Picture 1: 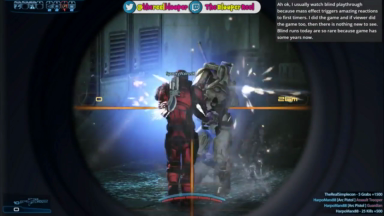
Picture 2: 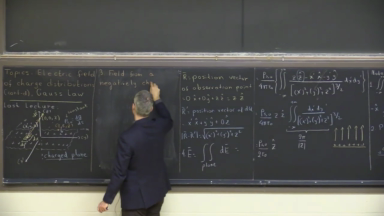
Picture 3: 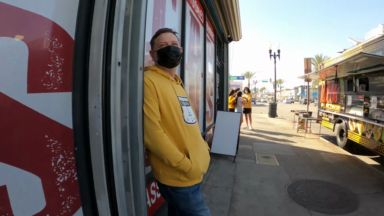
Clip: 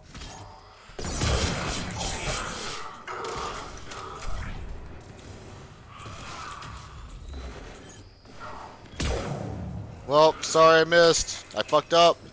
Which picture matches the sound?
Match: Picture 1